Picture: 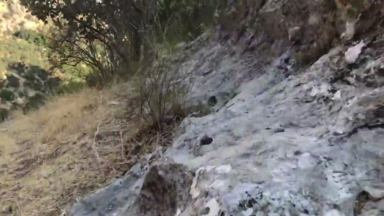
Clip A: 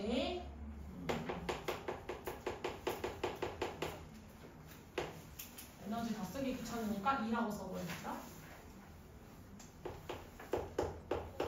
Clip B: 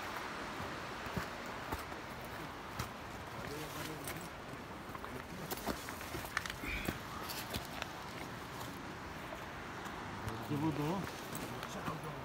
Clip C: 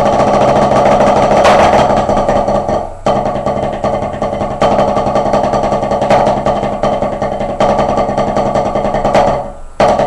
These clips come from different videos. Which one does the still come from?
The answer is B